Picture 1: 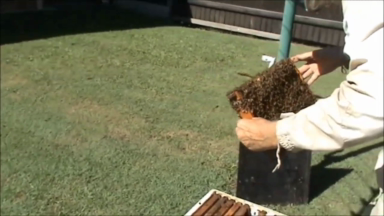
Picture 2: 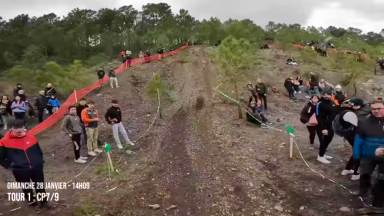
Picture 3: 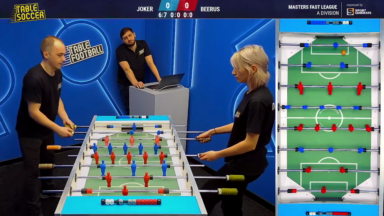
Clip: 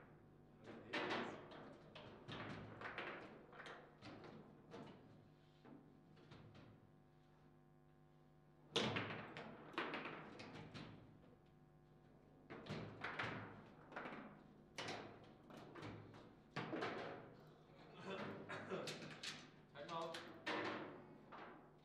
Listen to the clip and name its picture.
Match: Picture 3